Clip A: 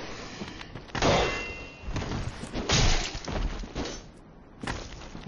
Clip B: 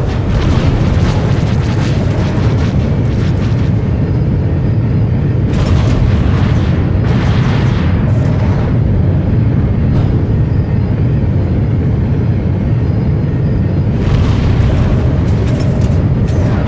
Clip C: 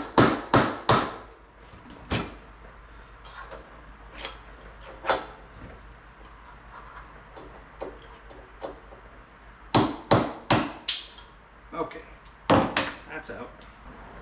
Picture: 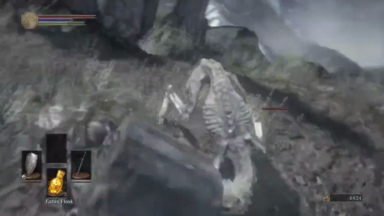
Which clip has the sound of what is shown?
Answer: A